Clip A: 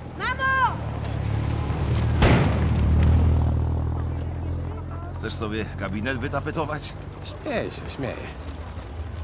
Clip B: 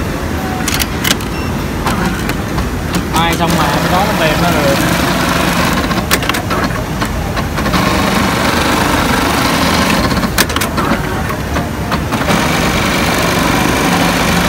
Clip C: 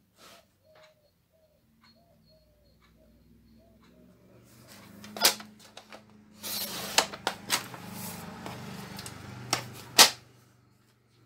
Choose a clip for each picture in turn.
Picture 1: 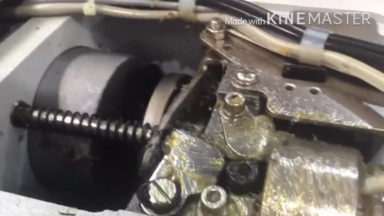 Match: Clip B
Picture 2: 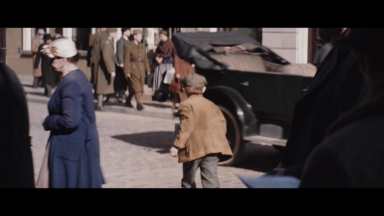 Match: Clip A